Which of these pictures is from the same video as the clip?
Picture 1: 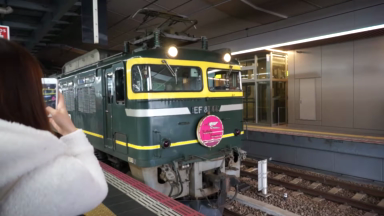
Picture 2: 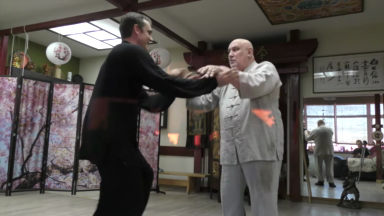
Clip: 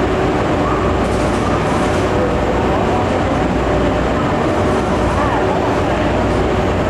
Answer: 1